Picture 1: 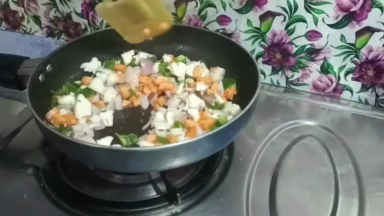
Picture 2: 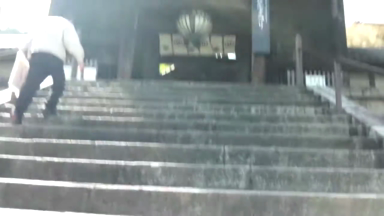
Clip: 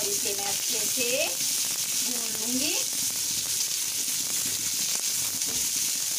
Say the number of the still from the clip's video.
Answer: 1